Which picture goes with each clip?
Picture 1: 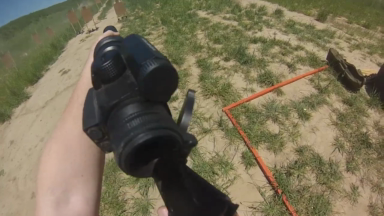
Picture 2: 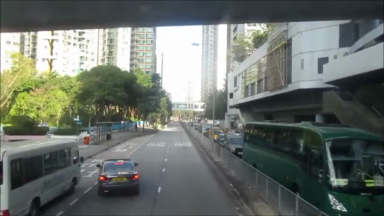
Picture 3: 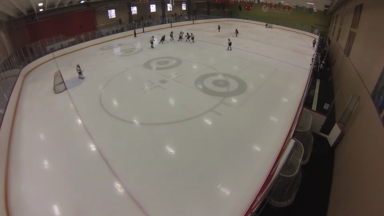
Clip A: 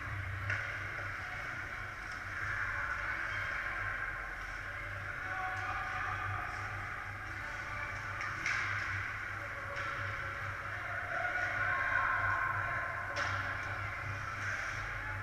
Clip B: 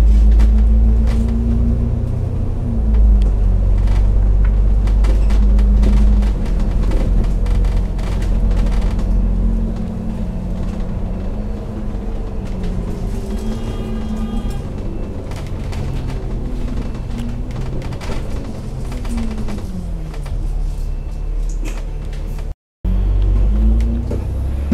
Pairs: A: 3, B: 2